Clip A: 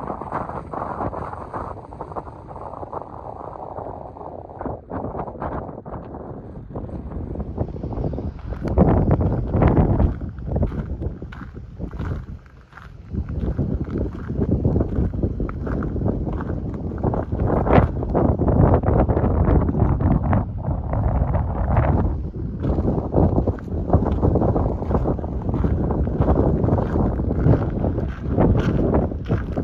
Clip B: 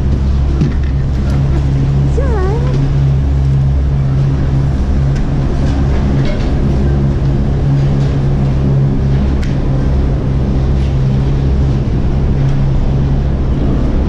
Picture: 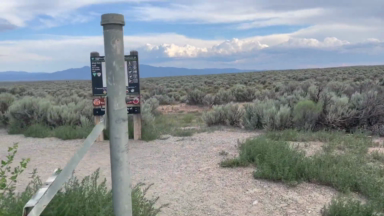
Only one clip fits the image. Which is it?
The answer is A